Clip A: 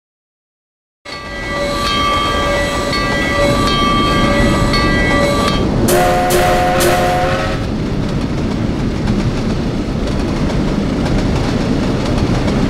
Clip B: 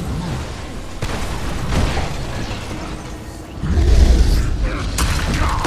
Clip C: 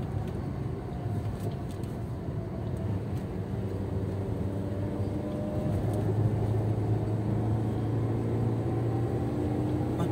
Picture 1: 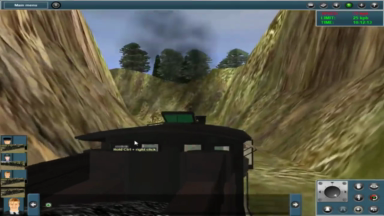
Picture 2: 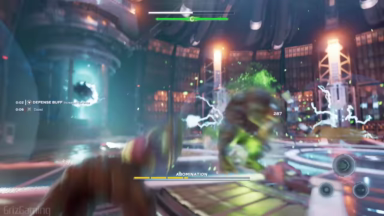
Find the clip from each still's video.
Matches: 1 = A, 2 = B